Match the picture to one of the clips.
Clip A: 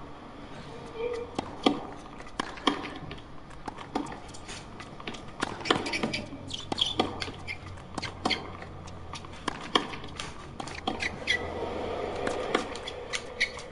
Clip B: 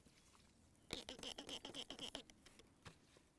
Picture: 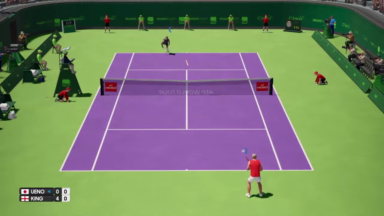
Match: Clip A